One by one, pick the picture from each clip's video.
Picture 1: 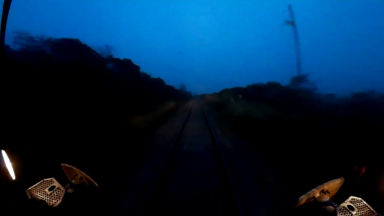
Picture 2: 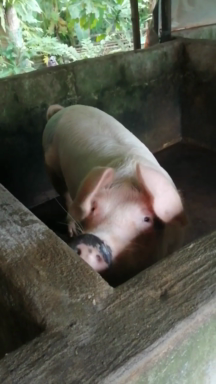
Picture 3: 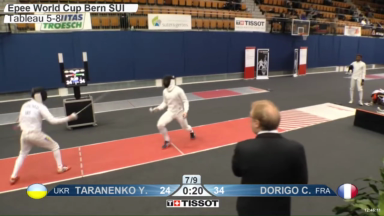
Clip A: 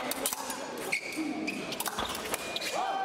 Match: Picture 3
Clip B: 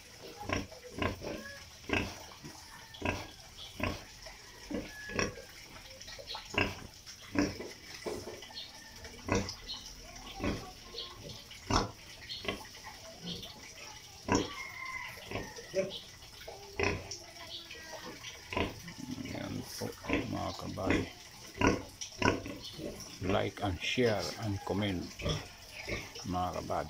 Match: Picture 2